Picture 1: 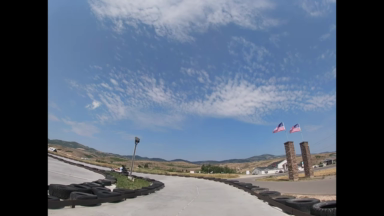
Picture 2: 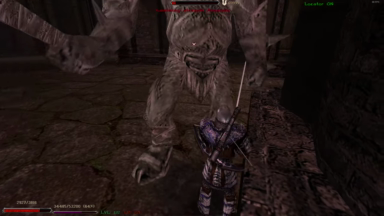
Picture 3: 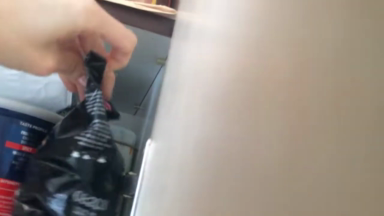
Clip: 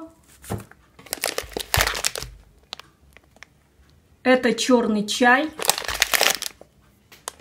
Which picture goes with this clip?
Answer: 3